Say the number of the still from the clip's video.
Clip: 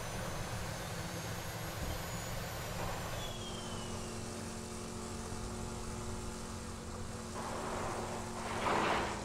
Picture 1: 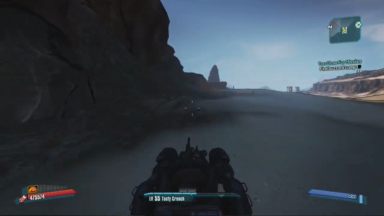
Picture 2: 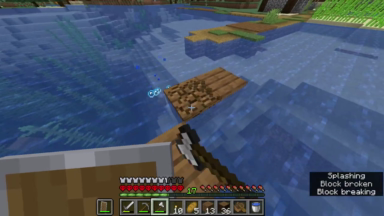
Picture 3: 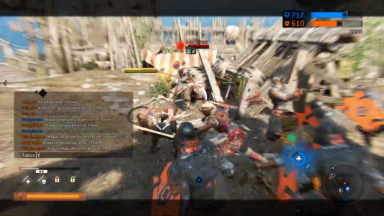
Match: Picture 1